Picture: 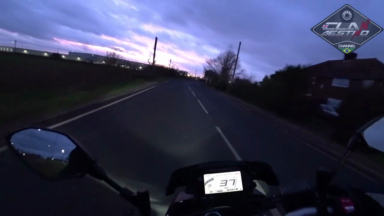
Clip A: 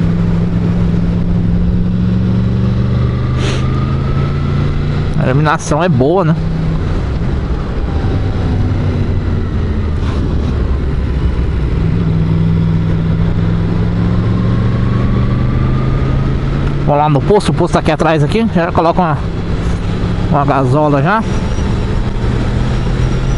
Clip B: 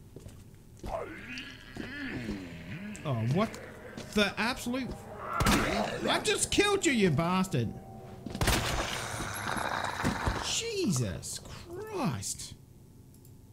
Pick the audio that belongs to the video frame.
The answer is A